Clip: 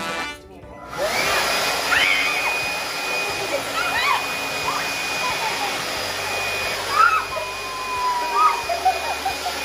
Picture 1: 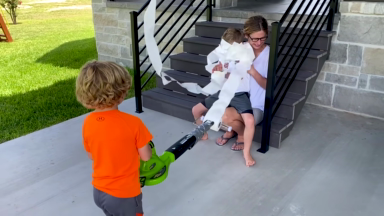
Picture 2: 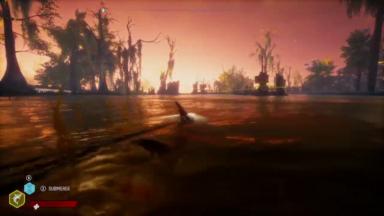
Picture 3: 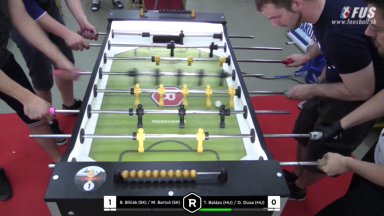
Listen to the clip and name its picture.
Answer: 1